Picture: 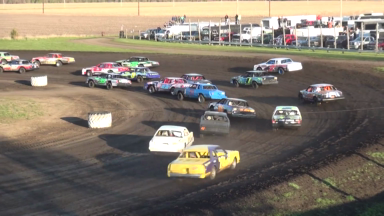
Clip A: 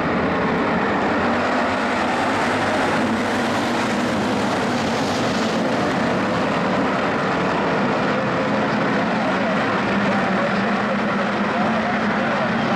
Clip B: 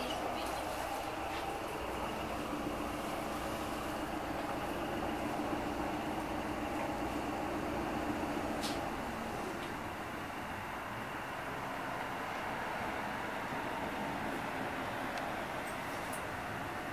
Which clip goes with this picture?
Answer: A